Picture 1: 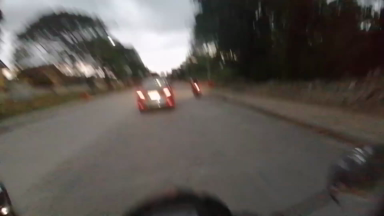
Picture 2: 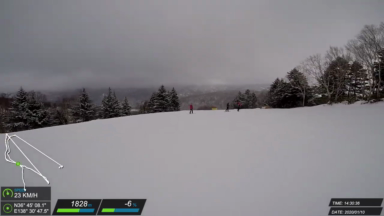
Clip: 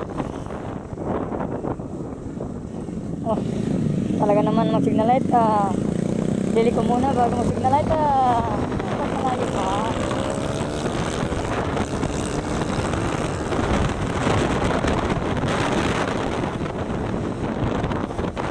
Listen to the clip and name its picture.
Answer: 1